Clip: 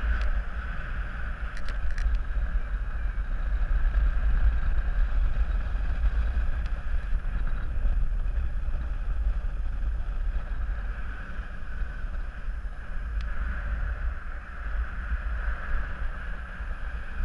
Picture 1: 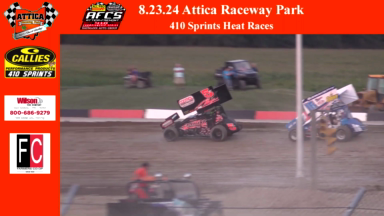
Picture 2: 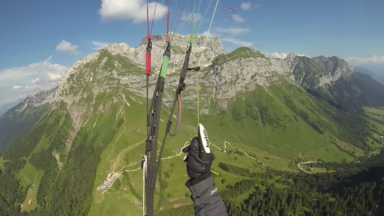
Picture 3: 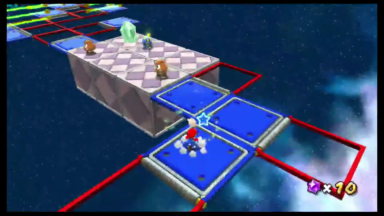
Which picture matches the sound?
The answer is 2